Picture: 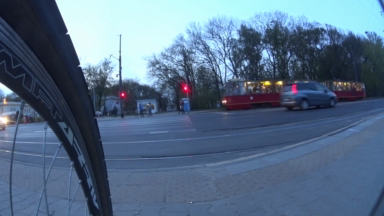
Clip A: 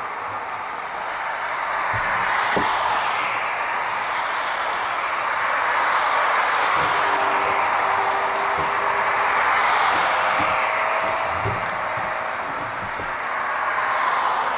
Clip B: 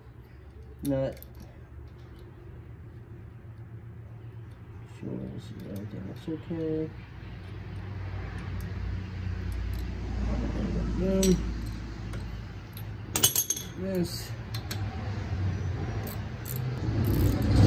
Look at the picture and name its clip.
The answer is A